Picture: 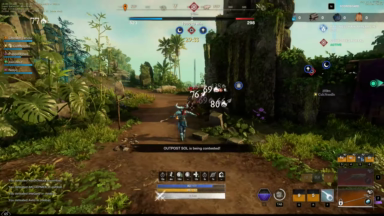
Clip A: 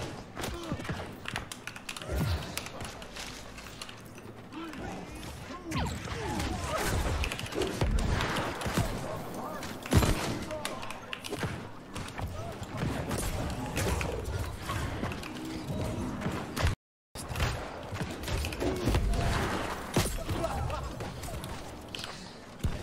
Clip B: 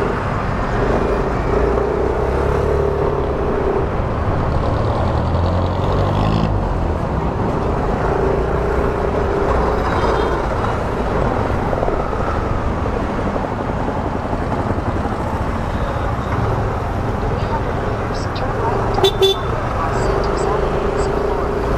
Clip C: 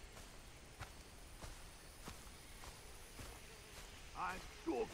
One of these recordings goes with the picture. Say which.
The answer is A